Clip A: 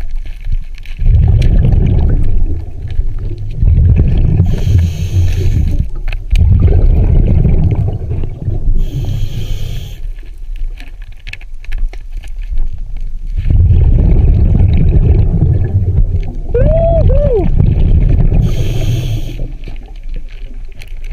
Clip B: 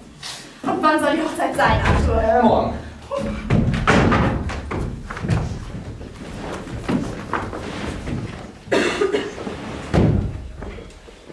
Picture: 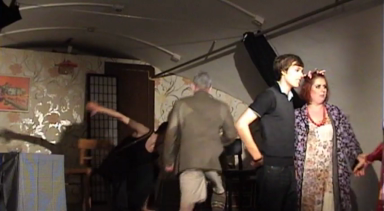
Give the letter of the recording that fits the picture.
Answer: B